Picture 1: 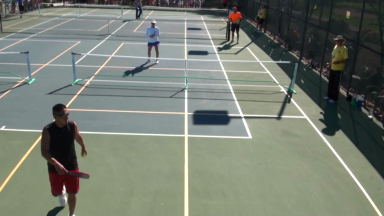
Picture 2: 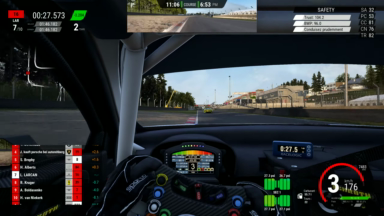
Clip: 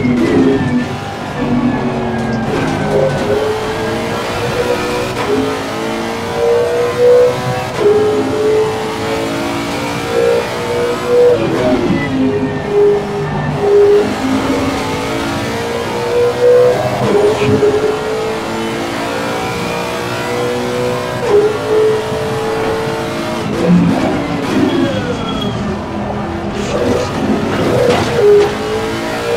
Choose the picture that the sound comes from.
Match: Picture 2